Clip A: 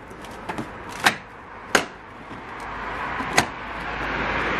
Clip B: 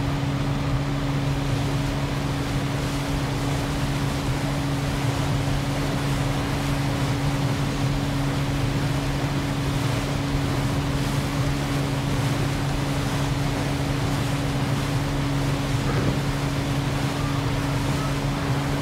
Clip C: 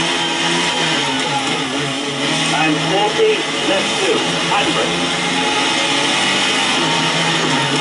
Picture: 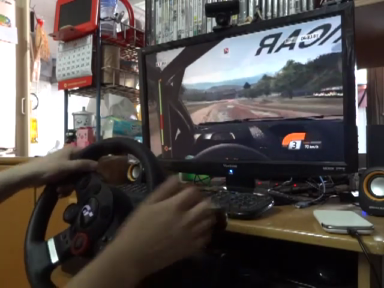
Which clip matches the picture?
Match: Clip C